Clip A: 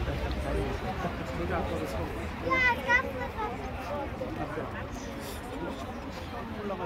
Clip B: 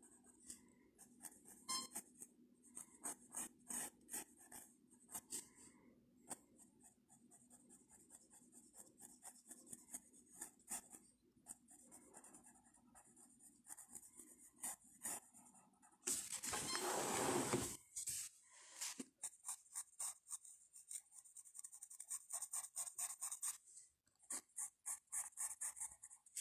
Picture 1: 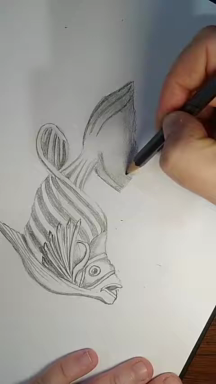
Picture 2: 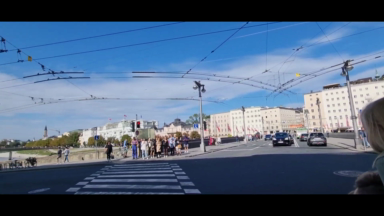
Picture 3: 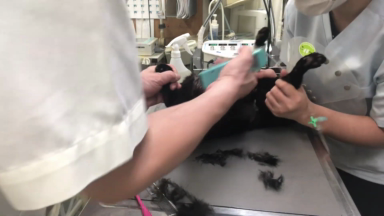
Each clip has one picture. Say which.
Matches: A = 2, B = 1